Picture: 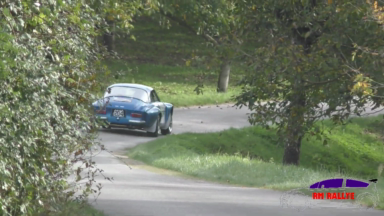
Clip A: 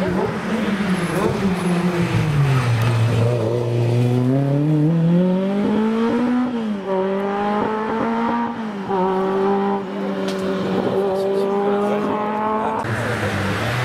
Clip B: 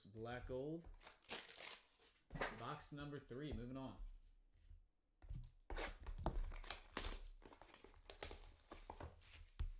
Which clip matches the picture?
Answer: A